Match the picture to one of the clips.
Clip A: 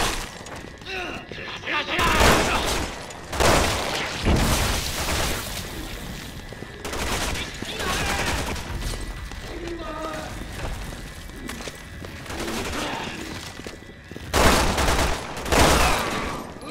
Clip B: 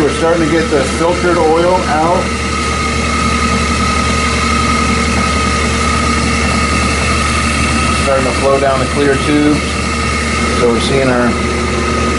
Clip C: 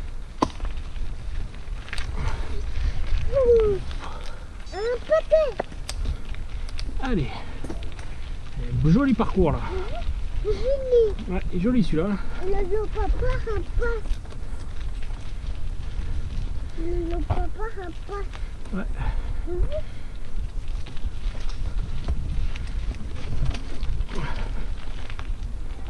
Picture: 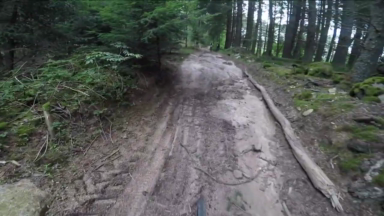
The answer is C